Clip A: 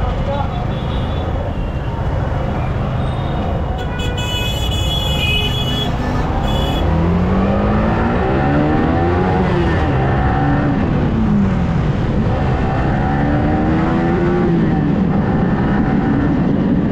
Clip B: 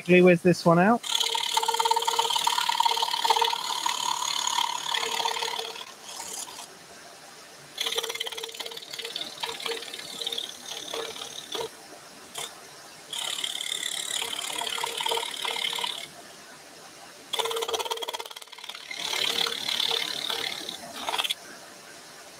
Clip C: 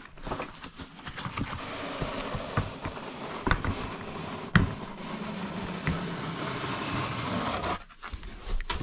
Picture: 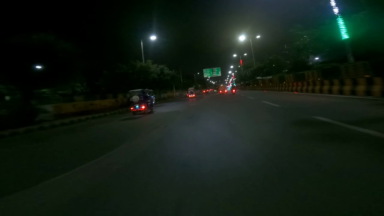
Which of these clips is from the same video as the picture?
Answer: A